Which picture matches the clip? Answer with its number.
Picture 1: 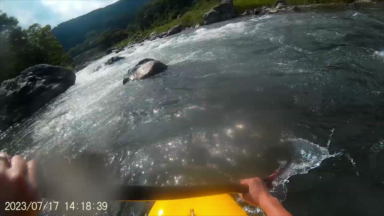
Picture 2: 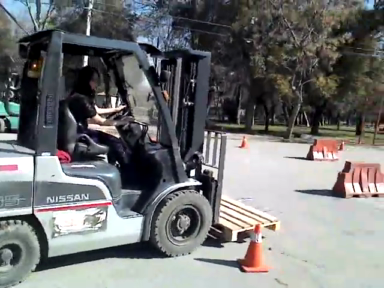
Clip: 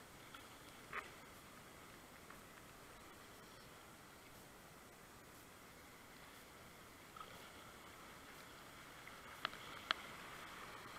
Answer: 1